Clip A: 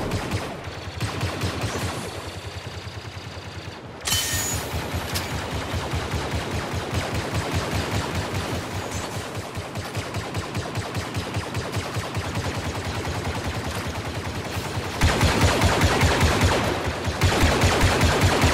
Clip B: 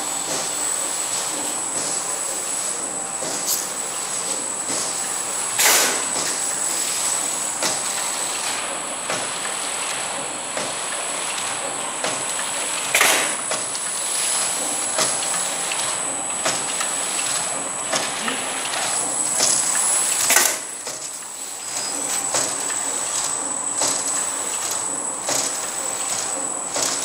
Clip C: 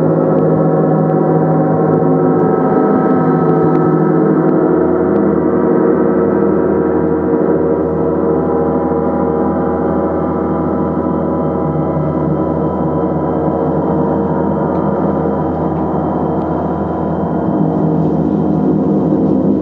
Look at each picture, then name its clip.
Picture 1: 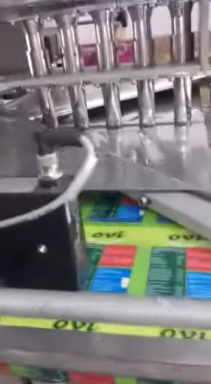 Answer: B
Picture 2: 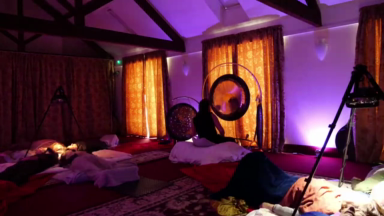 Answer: C